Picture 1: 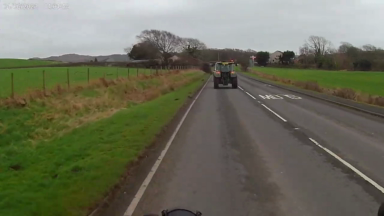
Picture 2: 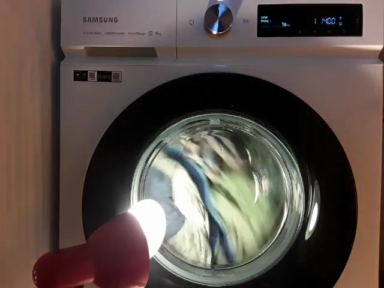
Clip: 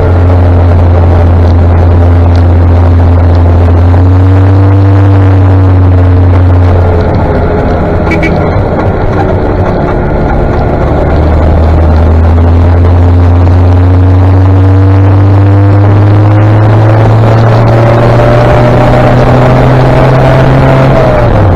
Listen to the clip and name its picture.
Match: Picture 1